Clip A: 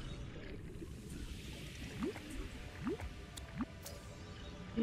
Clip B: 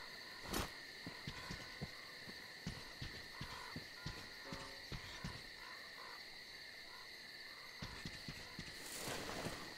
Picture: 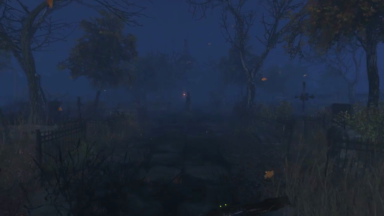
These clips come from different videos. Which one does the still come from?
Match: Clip B